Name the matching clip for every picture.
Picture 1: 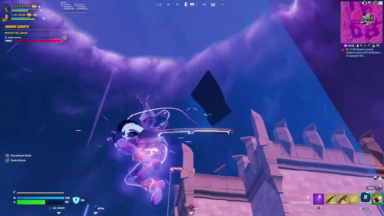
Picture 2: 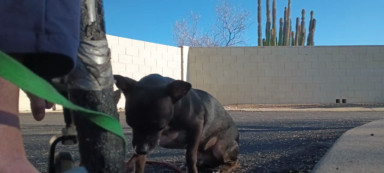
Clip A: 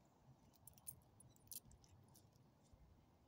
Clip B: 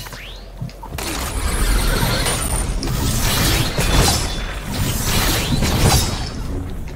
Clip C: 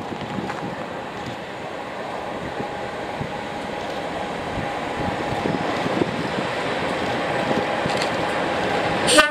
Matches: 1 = B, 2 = A